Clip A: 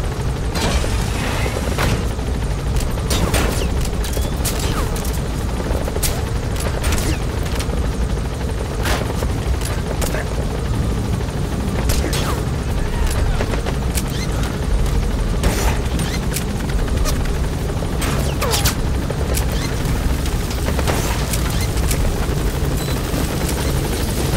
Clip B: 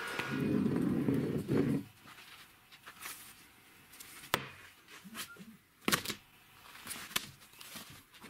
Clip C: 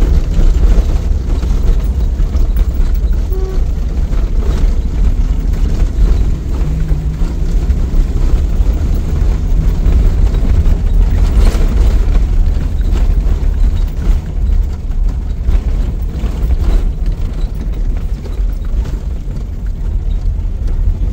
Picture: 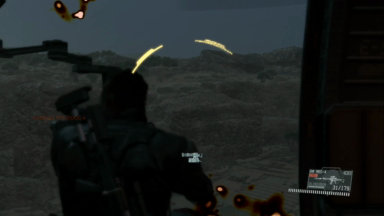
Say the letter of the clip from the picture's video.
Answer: A